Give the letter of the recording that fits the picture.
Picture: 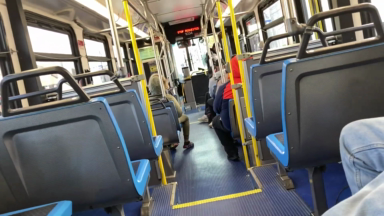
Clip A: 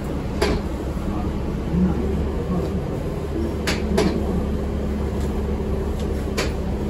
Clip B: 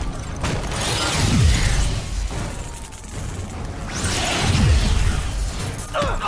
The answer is A